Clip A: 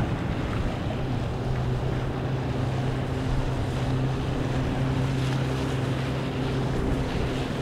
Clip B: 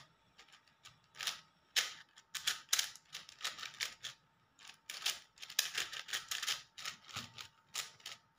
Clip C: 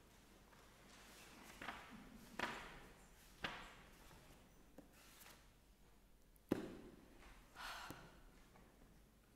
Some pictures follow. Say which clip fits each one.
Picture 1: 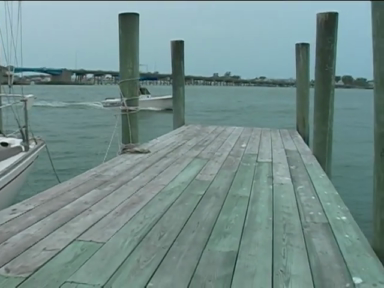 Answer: A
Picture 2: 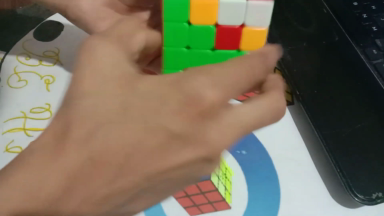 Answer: B